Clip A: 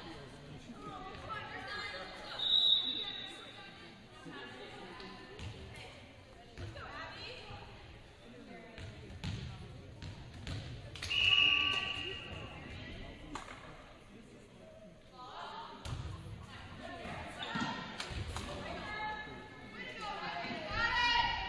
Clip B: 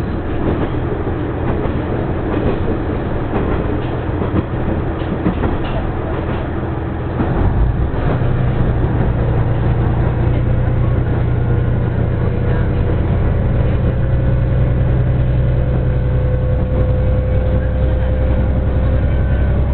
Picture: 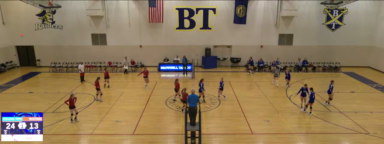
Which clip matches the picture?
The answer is A